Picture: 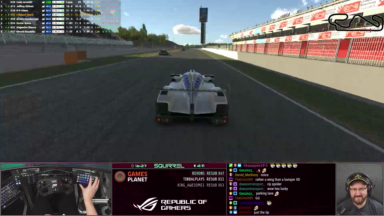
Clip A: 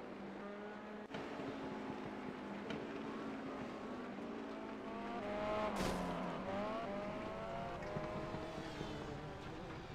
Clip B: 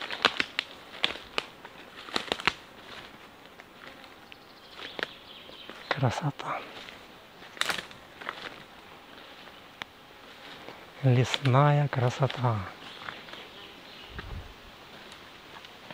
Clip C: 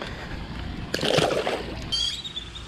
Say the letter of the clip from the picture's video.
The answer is A